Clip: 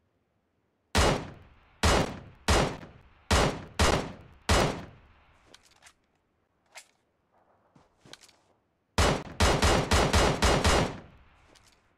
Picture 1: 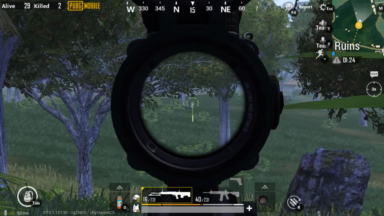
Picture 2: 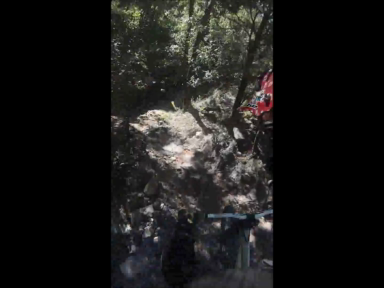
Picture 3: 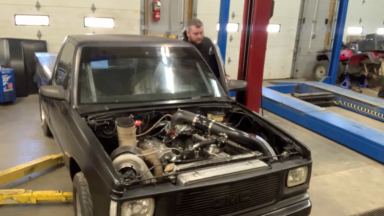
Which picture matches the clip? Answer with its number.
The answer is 1